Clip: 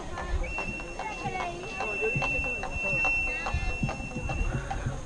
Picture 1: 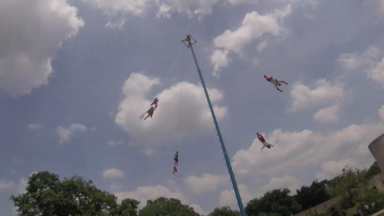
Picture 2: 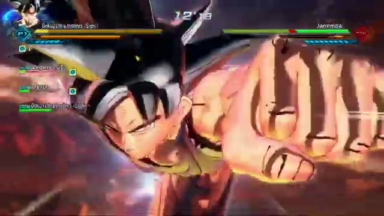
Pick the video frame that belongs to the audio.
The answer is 1